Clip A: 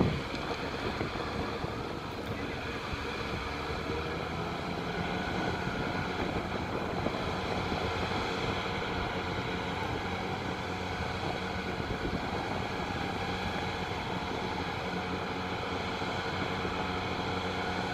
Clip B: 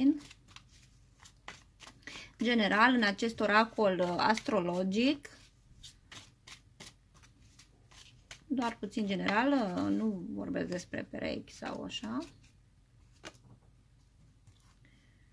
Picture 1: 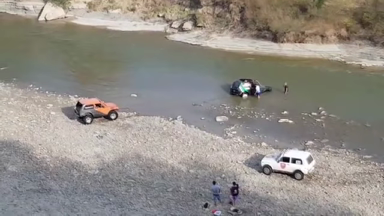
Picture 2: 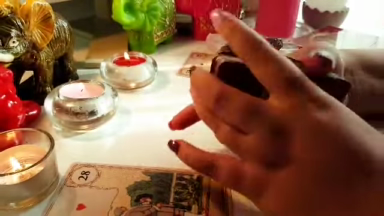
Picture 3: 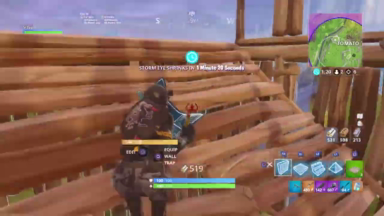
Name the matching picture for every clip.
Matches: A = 1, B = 2